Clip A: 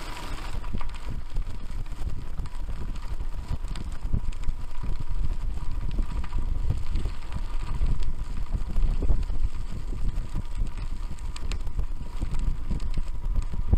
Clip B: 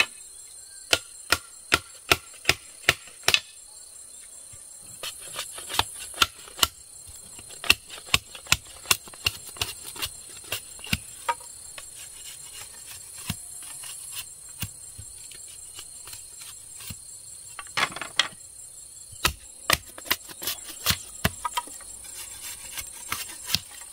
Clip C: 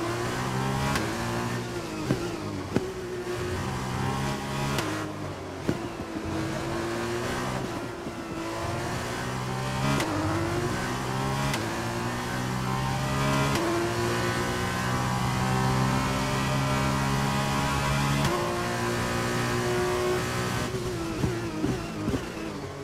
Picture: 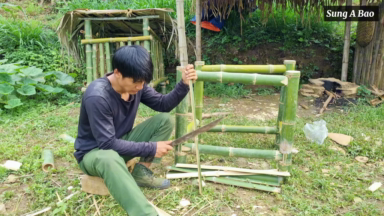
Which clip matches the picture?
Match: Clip B